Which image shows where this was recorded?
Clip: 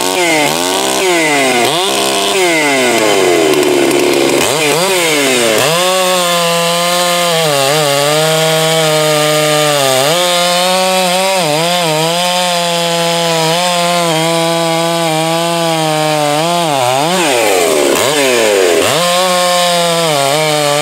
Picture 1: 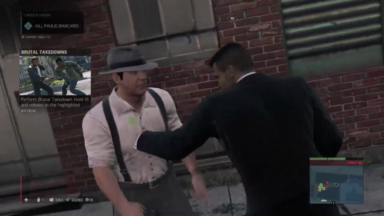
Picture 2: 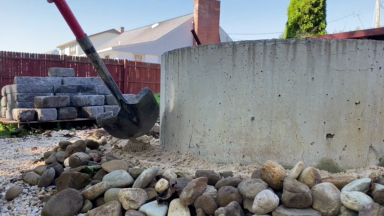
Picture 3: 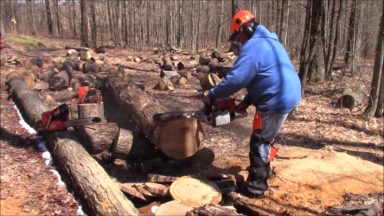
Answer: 3